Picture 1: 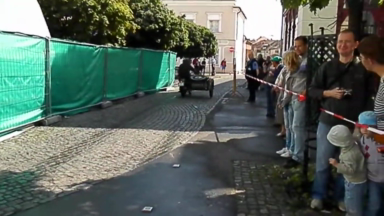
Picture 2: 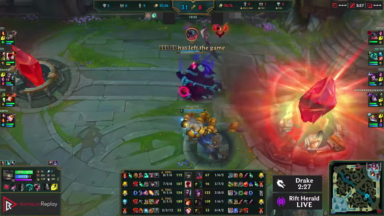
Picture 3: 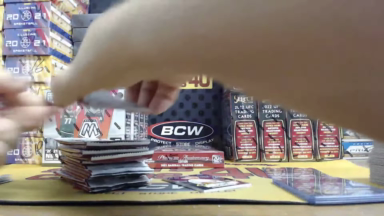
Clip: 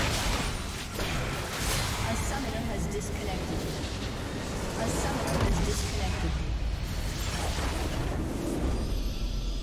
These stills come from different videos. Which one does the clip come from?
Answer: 2